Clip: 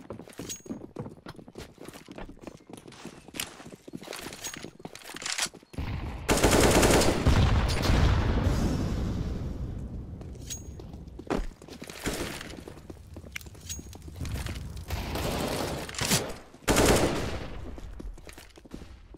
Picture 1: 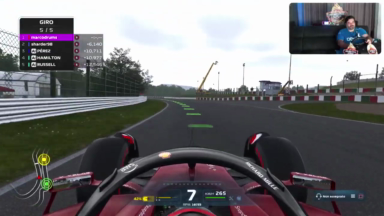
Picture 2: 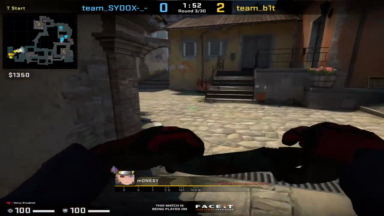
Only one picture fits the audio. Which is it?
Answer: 2